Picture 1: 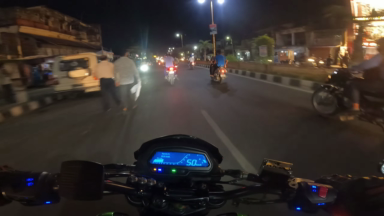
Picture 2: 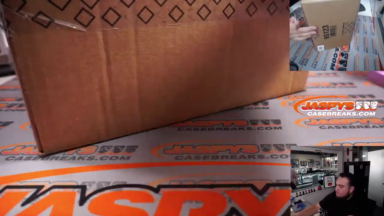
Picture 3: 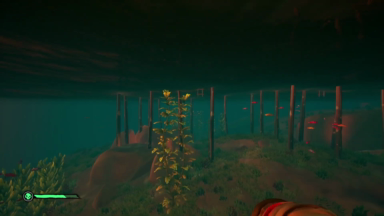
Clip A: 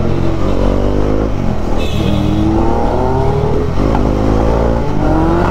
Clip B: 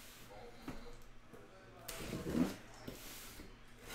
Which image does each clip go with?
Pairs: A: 1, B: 2